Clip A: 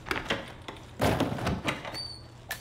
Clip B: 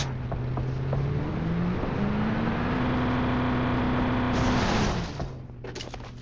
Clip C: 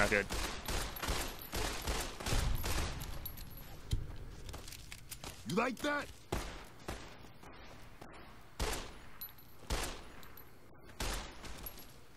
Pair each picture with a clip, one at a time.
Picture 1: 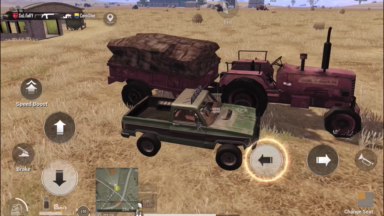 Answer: B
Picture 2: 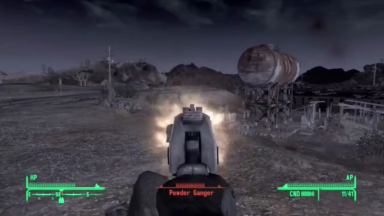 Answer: C